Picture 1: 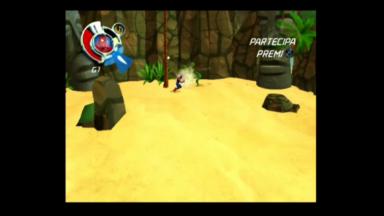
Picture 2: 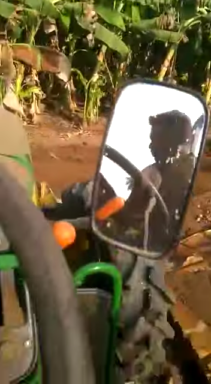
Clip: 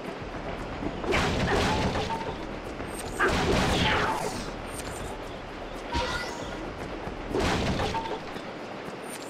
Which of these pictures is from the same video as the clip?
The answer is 1